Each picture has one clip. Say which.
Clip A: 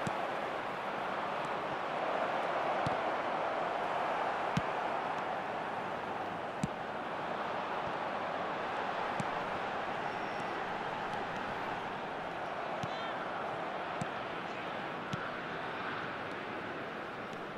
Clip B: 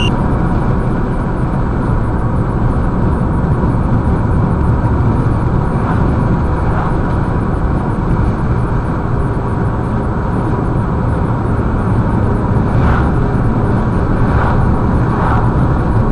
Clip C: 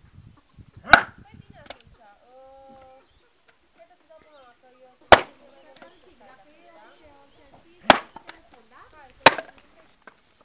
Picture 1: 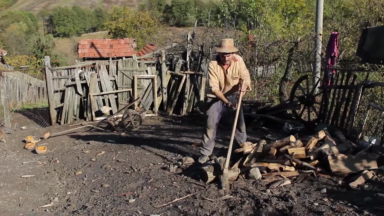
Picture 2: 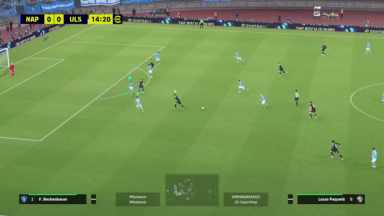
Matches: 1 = C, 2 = A